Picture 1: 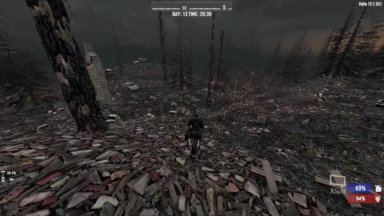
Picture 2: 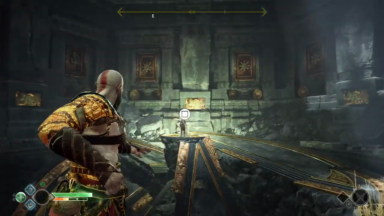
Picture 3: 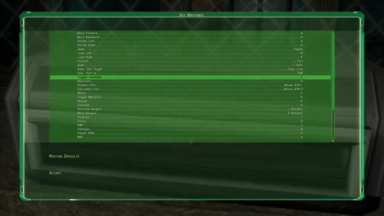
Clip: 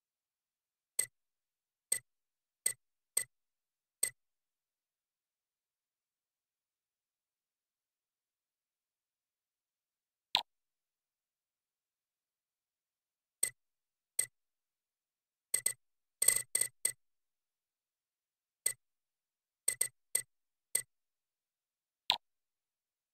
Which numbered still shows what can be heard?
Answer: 3